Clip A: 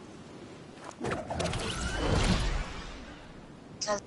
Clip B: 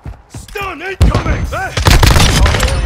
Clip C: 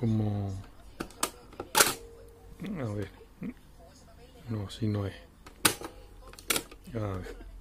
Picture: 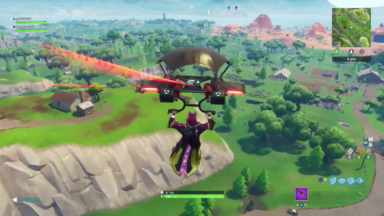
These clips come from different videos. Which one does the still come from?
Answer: A